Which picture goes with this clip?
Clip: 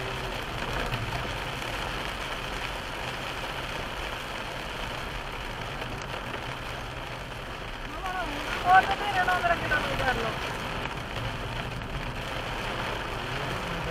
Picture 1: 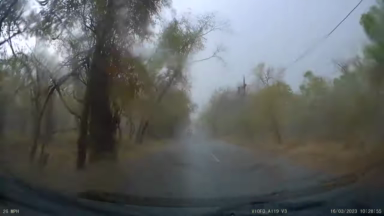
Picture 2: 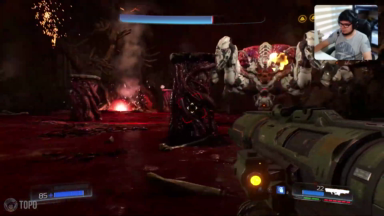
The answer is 1